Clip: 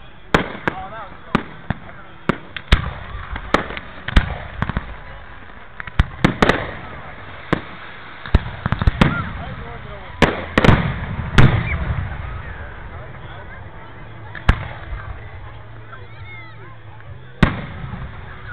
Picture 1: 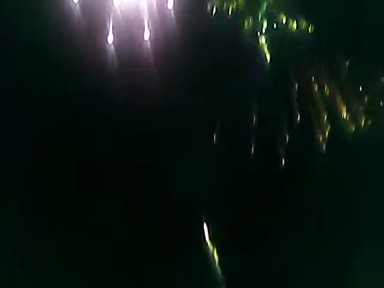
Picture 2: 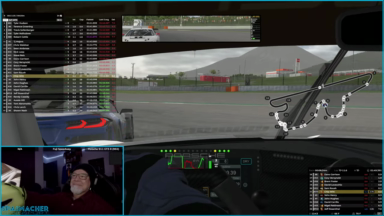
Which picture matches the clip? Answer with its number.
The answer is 1